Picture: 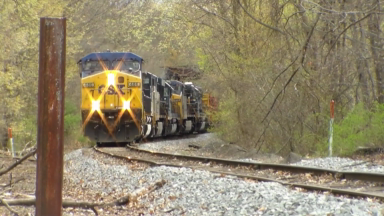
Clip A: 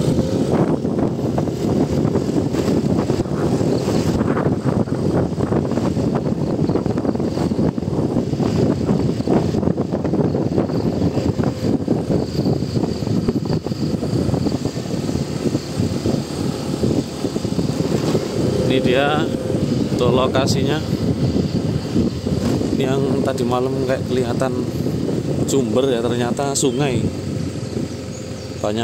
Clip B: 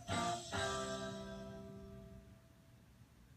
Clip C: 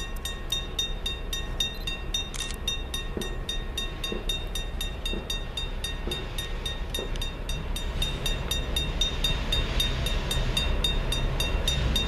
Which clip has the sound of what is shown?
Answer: C